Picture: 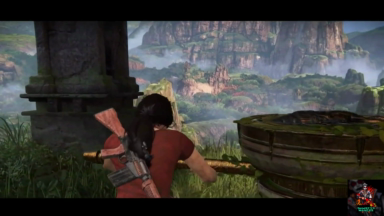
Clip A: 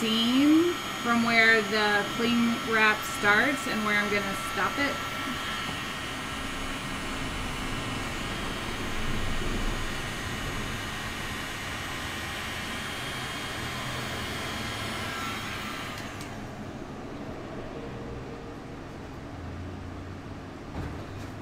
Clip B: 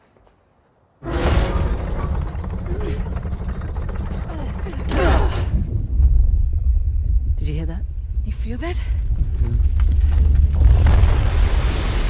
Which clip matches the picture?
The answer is B